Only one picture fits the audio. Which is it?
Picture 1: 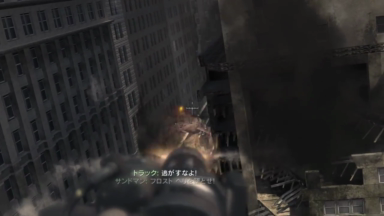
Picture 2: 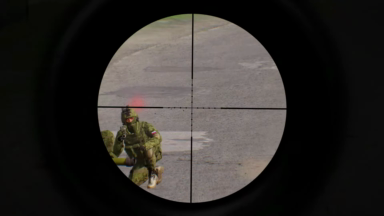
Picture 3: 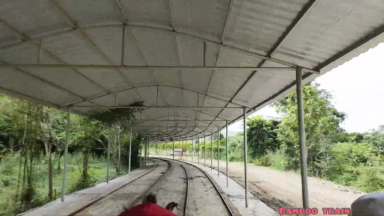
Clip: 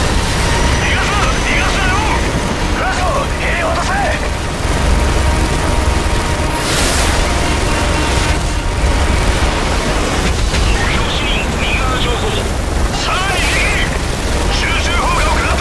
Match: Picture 1